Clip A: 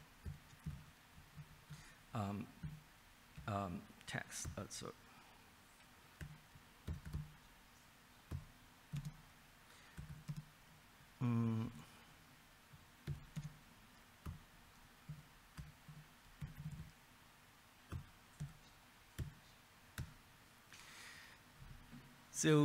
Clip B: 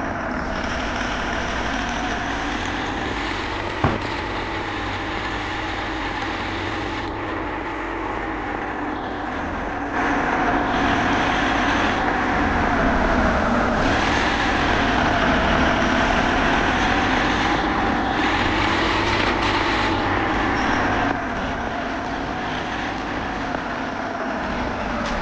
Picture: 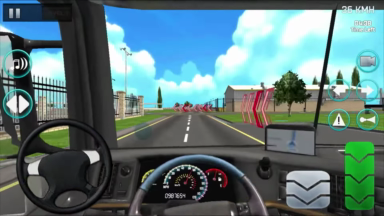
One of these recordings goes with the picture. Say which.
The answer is B